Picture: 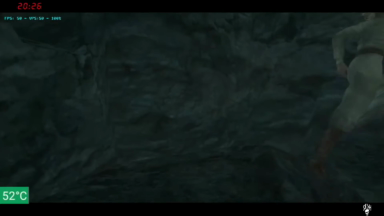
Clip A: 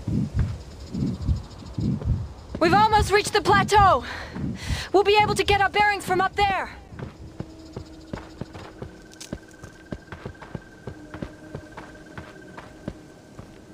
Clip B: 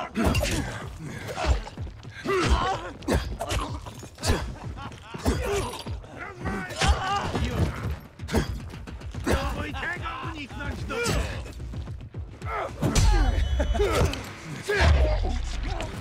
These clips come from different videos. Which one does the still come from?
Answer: A